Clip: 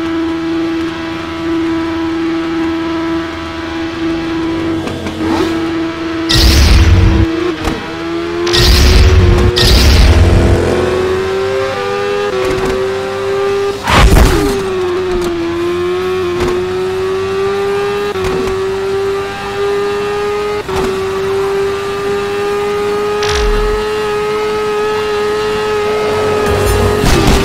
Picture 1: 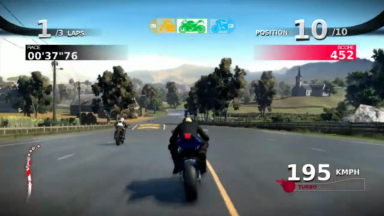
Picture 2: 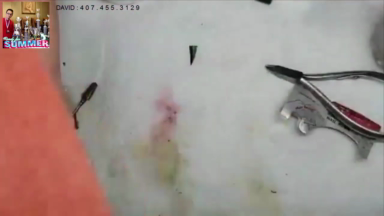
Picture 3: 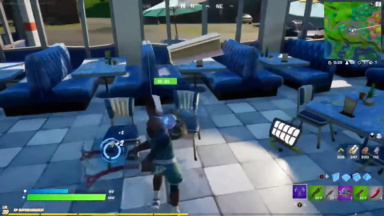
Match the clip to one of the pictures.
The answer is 1